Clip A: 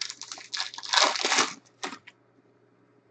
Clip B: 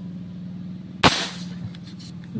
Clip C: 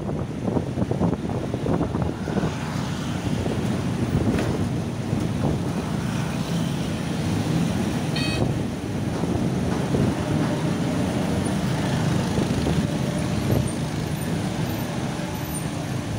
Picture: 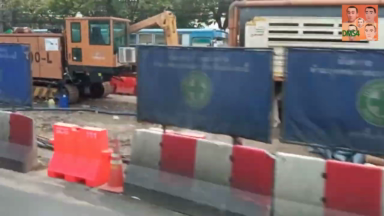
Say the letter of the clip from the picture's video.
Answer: C